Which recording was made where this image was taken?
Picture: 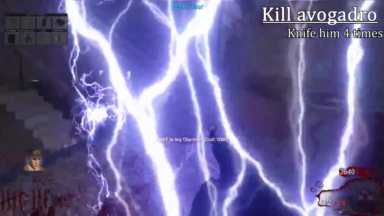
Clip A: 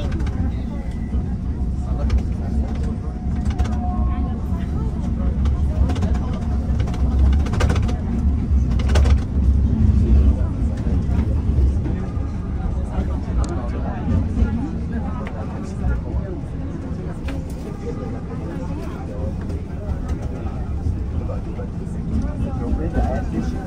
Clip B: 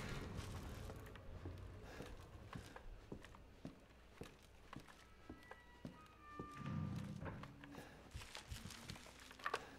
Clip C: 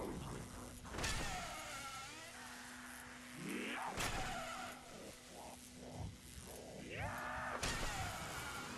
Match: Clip C